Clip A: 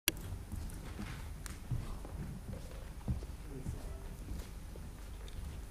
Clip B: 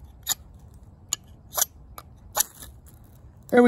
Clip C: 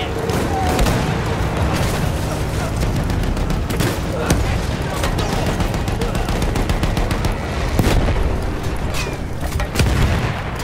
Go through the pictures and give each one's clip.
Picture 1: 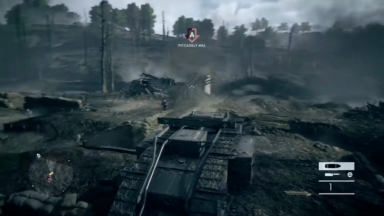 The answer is C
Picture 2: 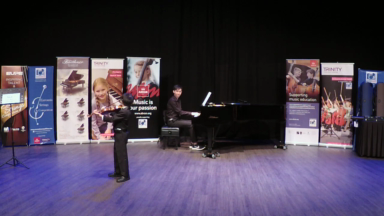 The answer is A